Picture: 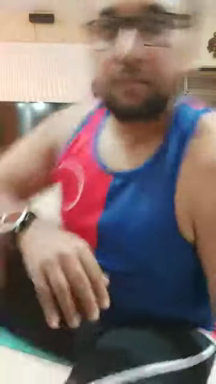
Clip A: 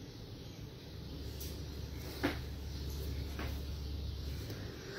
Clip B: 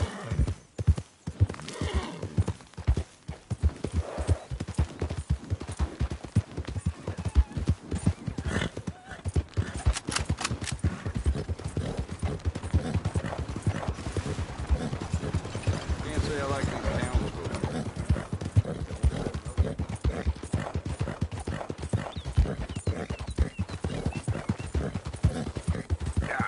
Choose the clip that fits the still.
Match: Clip A